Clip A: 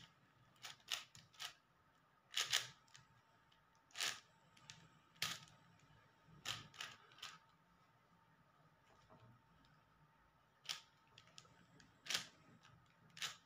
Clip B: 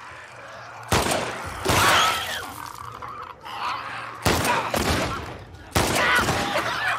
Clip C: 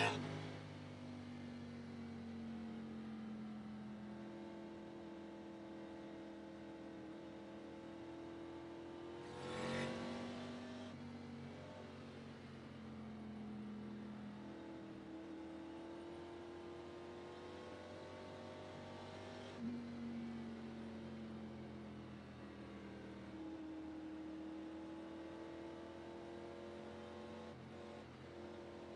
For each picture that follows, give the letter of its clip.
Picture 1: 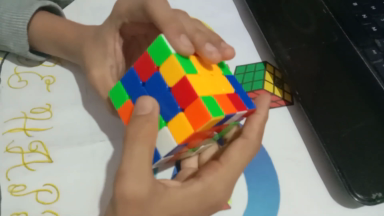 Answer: A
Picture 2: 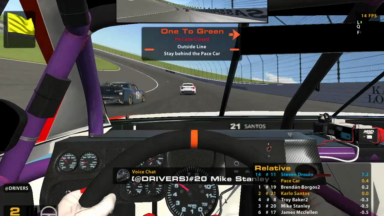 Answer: C